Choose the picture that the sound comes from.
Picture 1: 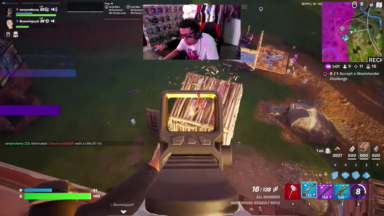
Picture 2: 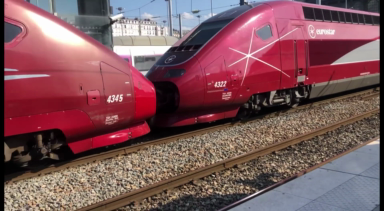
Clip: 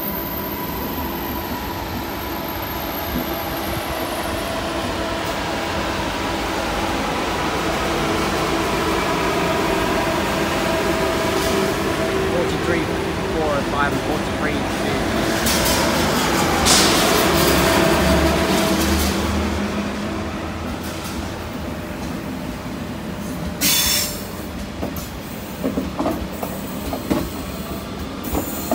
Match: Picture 2